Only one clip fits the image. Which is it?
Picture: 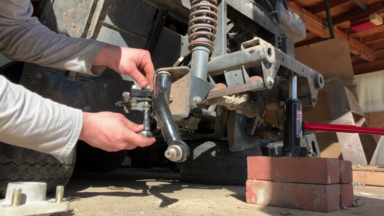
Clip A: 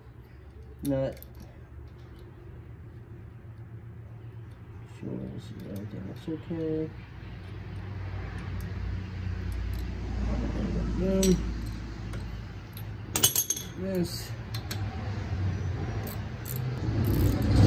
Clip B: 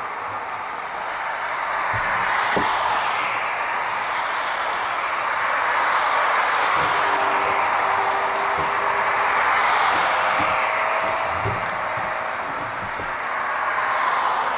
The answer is A